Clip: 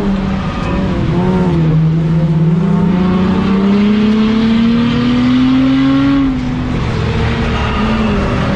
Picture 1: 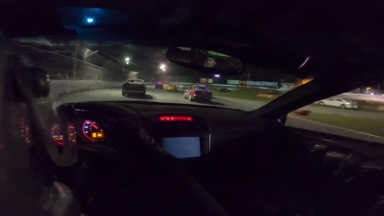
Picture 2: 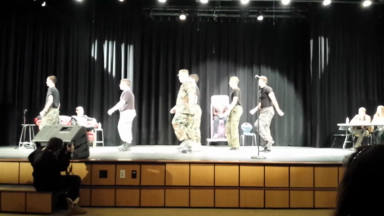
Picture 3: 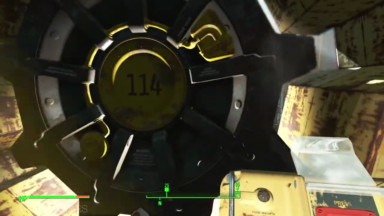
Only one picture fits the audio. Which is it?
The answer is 1